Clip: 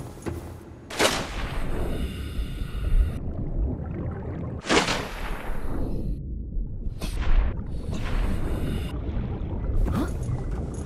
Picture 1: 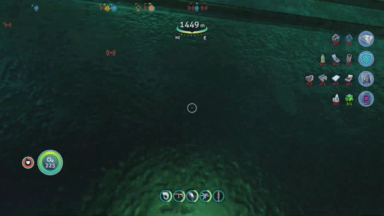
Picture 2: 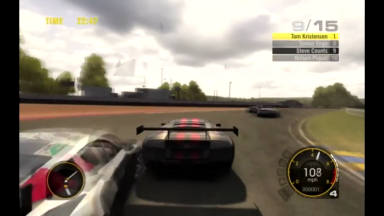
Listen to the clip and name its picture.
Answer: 1